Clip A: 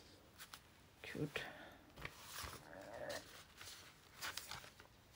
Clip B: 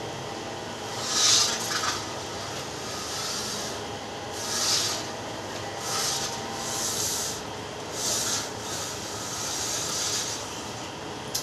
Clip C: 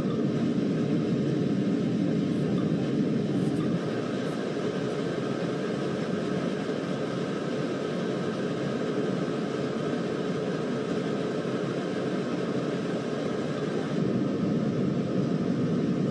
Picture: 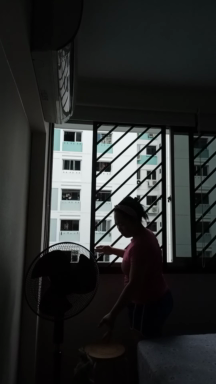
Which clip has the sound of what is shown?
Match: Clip B